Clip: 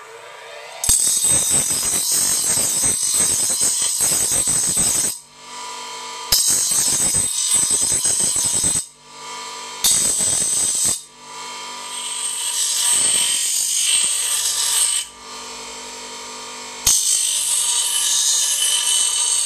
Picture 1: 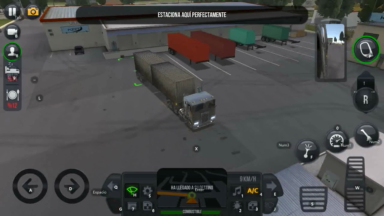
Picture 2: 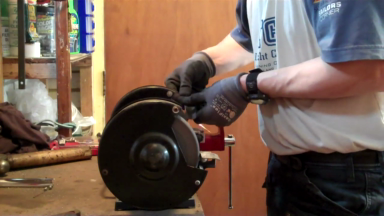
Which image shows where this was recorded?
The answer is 2